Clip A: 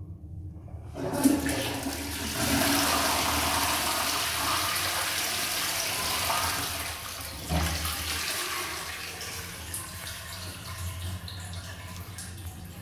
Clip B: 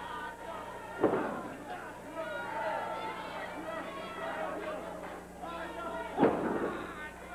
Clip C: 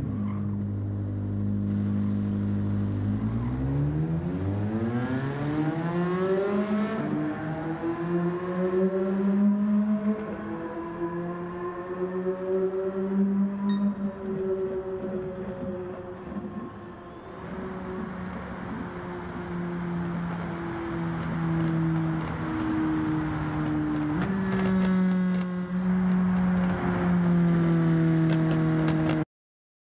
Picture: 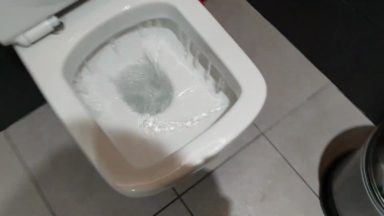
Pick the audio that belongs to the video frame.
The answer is A